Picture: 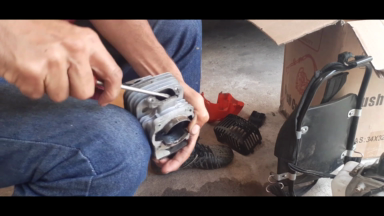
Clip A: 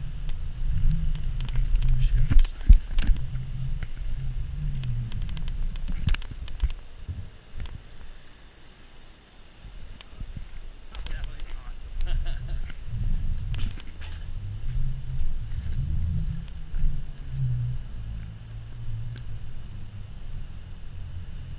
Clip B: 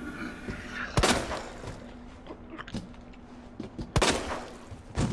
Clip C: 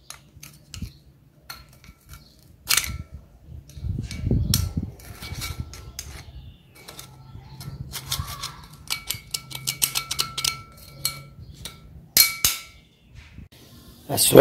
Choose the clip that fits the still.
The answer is C